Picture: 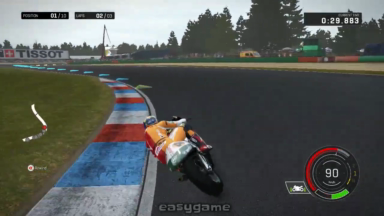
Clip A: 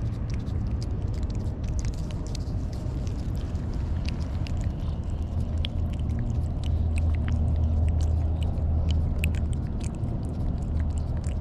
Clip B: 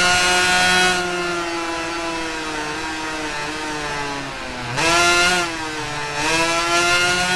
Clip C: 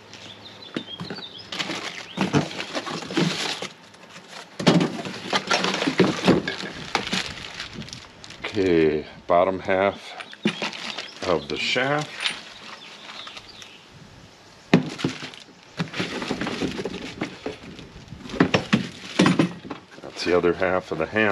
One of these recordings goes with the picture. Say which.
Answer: B